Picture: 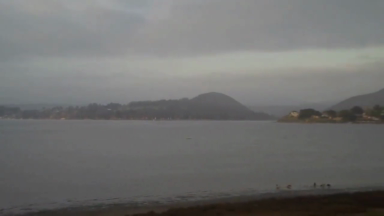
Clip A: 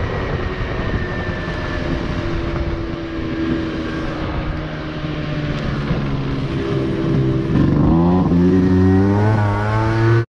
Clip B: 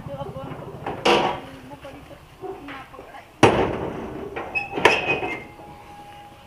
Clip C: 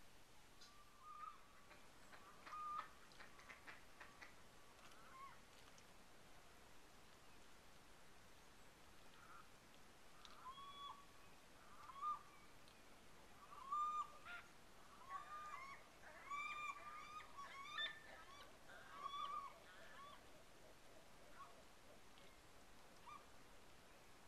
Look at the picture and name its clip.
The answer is C